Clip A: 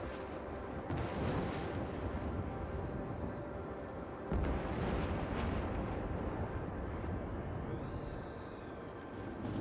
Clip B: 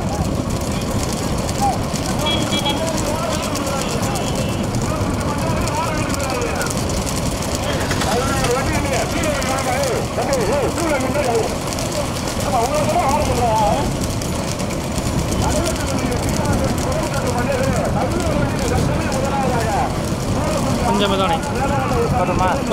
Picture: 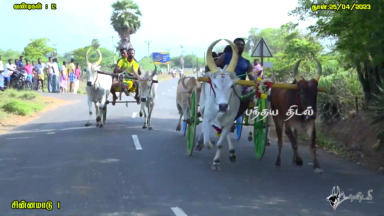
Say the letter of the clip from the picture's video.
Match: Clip B